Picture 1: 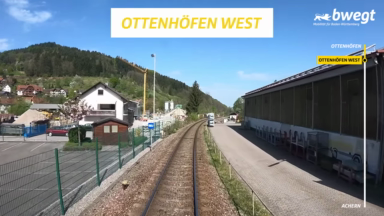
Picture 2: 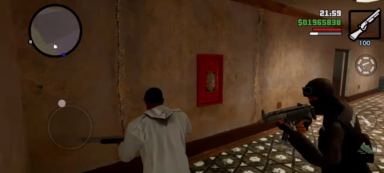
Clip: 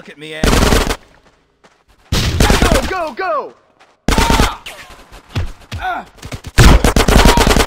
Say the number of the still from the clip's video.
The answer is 2